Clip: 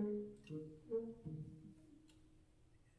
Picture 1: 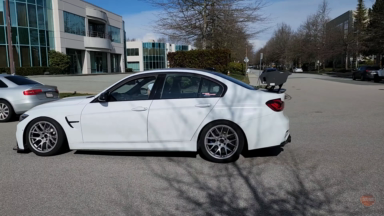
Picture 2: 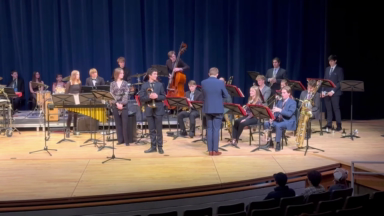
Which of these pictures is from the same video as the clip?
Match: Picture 2